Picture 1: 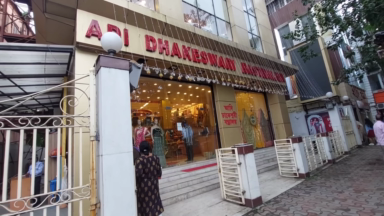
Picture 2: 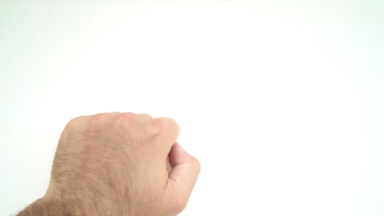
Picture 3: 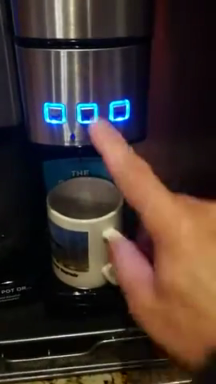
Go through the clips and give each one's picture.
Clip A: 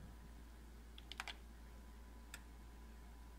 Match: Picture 3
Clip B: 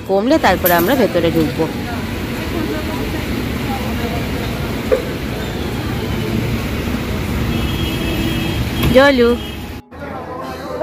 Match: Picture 1